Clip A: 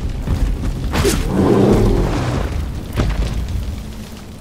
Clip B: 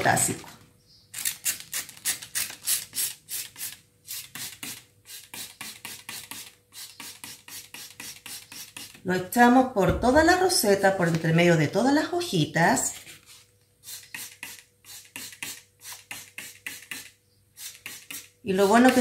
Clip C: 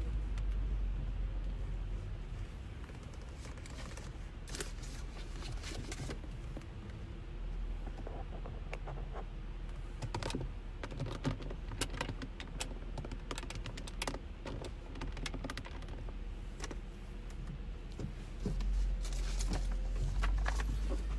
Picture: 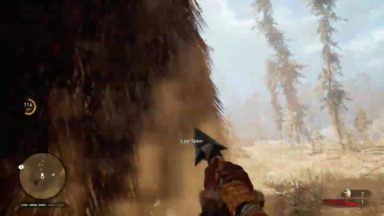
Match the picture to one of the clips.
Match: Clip A